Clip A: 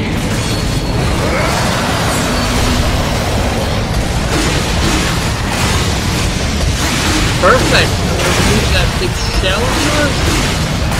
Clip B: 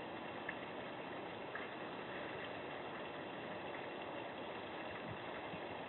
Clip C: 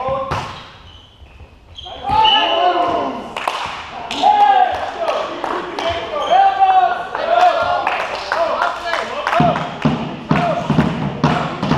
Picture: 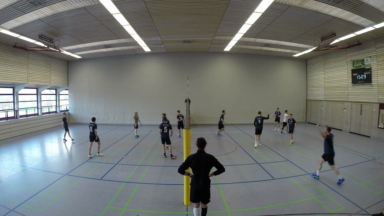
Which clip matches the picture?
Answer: C